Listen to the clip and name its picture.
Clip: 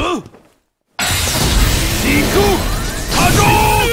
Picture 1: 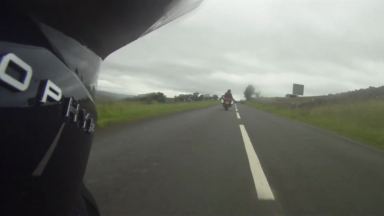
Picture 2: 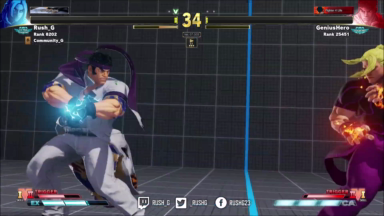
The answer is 2